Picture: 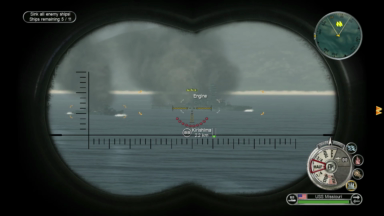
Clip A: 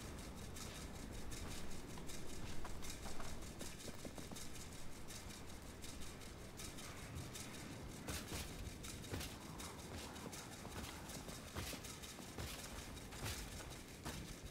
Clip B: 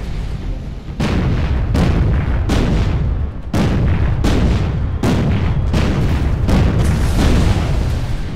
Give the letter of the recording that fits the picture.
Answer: B